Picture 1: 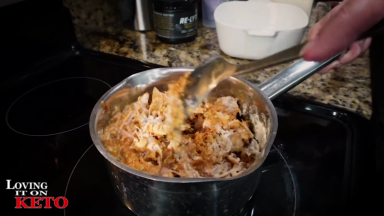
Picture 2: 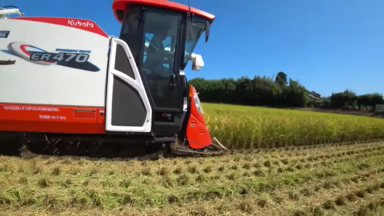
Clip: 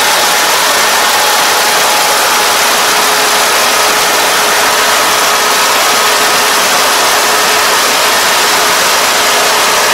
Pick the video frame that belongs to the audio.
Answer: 2